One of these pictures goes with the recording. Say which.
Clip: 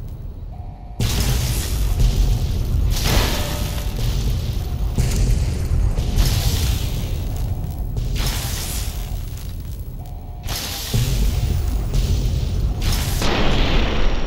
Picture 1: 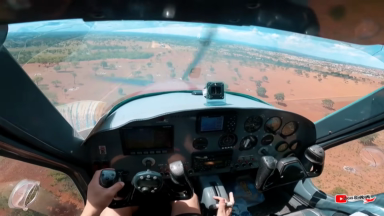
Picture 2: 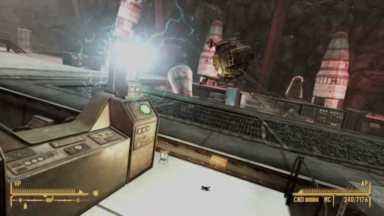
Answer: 2